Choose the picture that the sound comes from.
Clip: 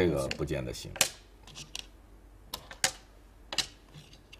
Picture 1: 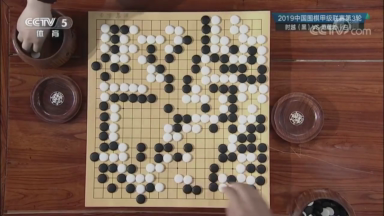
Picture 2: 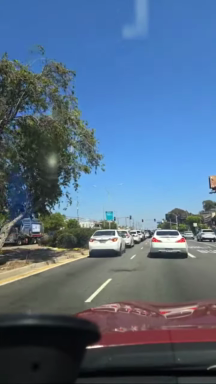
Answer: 1